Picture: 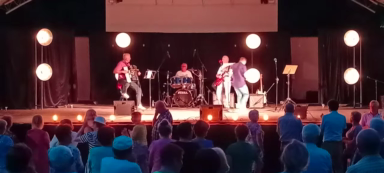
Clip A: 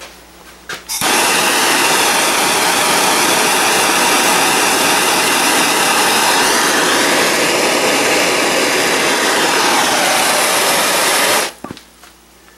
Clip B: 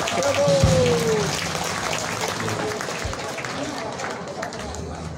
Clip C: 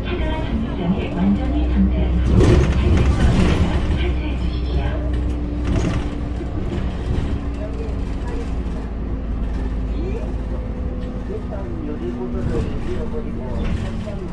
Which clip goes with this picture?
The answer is B